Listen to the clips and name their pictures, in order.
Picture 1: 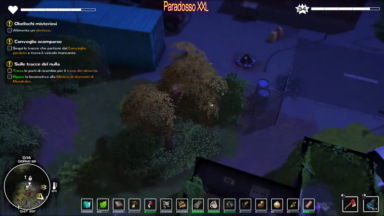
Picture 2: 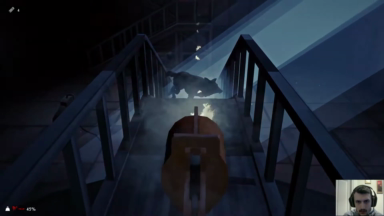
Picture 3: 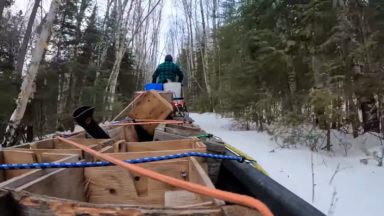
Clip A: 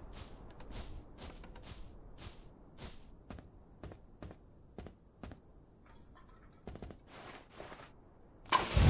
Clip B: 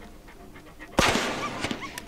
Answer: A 1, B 2